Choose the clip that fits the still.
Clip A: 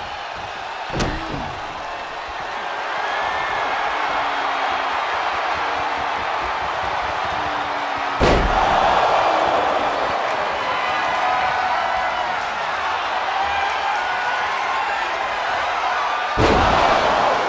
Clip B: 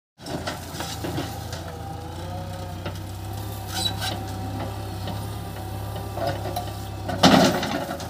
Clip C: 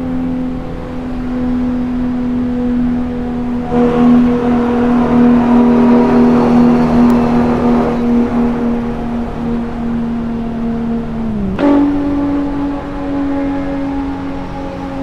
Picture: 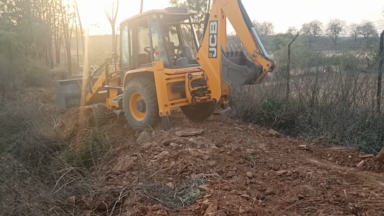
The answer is B